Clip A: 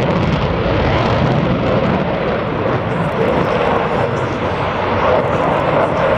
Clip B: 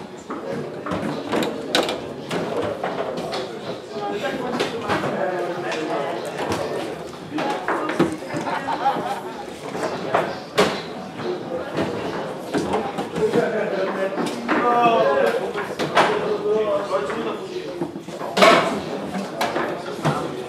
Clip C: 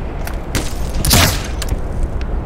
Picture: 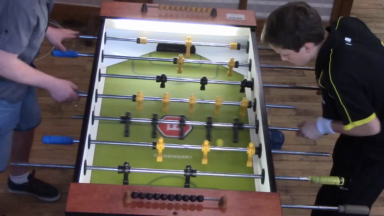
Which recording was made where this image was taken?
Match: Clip B